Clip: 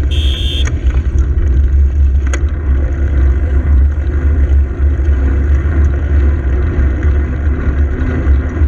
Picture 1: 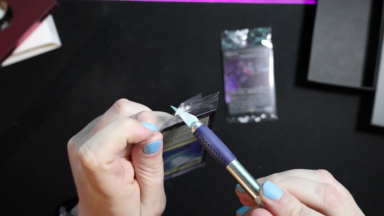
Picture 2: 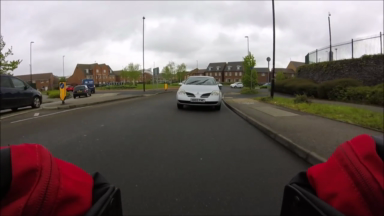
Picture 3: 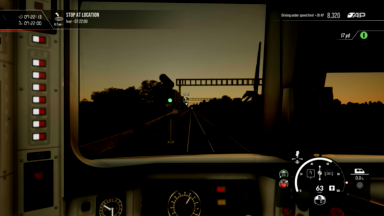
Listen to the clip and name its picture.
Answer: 2